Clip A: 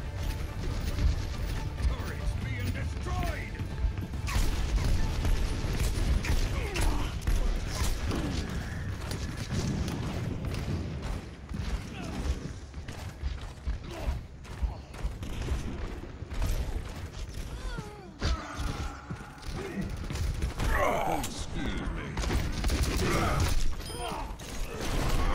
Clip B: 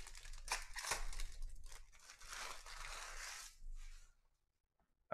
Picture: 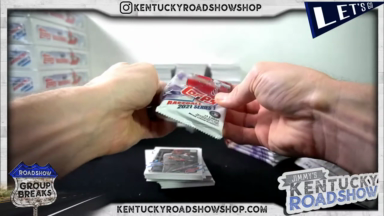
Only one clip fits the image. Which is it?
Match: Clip B